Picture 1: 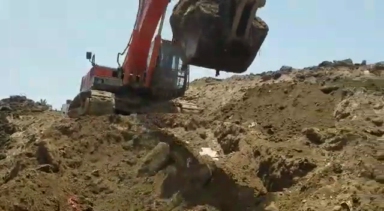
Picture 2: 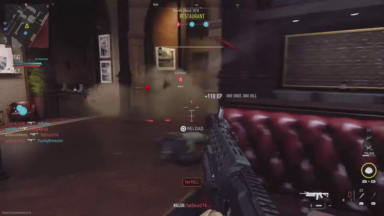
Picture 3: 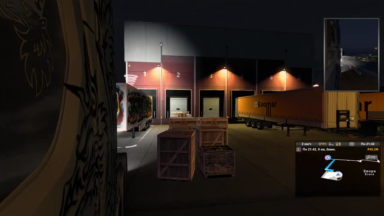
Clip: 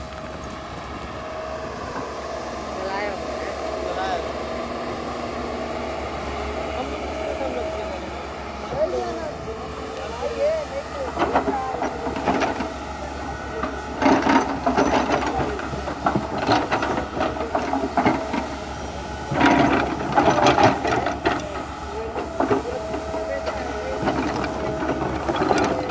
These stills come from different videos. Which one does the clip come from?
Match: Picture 1